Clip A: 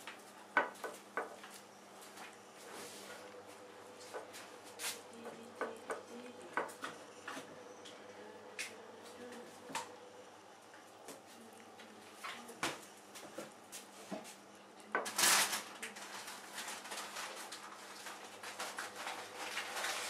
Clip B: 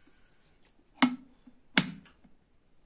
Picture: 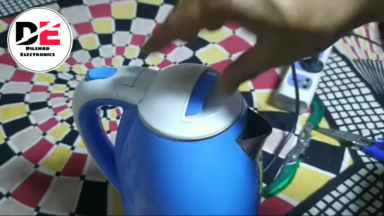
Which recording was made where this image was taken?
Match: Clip B